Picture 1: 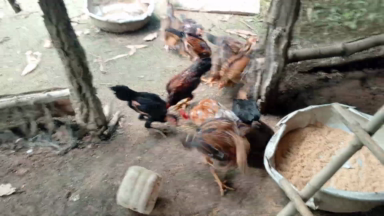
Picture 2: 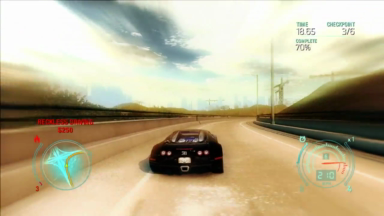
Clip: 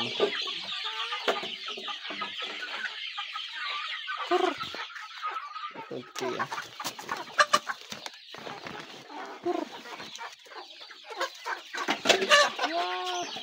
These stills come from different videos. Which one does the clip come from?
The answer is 1